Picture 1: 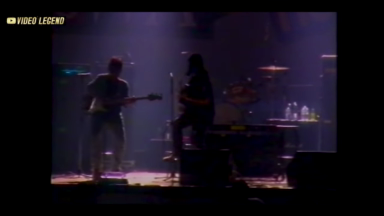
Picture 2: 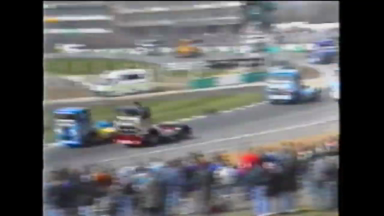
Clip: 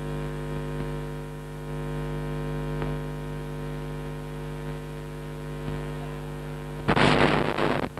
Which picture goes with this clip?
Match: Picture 1